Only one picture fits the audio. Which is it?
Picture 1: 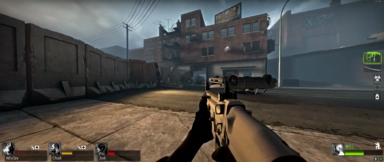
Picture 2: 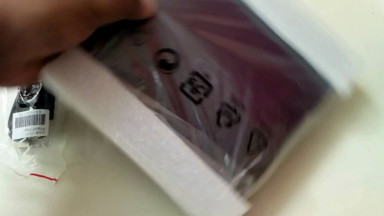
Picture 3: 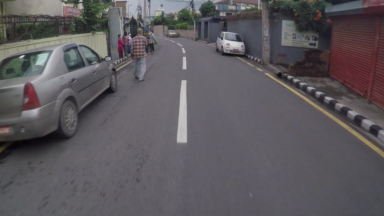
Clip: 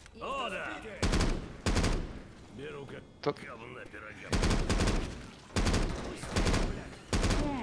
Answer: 1